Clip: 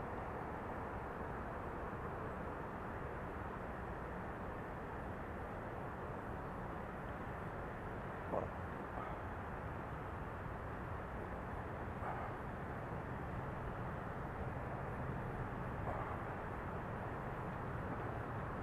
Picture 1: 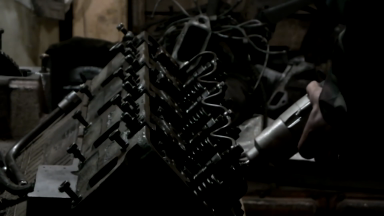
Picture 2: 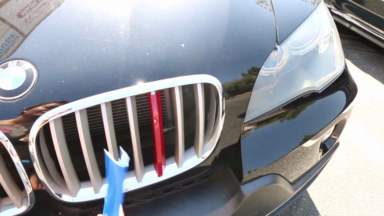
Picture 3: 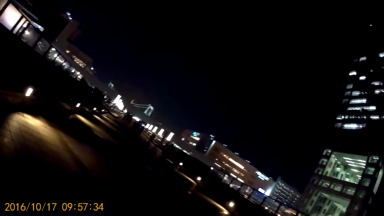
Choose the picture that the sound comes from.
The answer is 3